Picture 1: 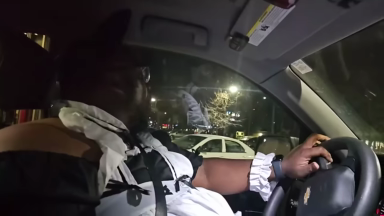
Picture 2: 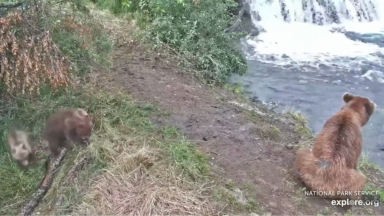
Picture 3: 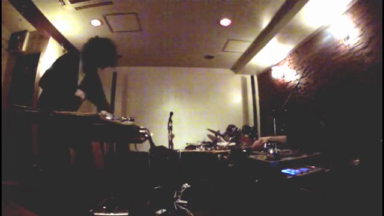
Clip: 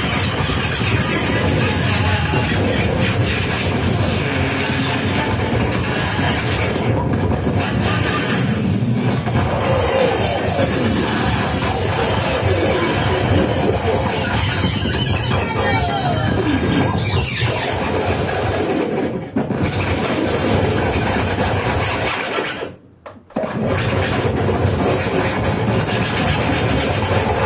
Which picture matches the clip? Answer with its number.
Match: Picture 3